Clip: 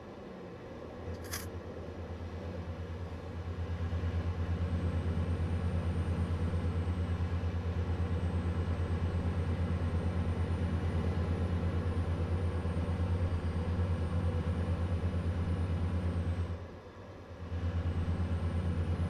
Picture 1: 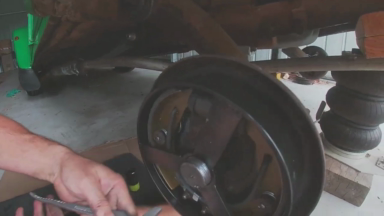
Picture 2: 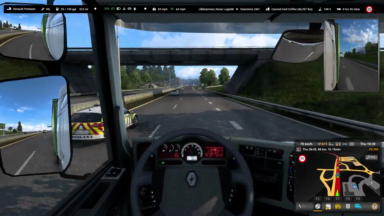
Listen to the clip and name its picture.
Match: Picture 2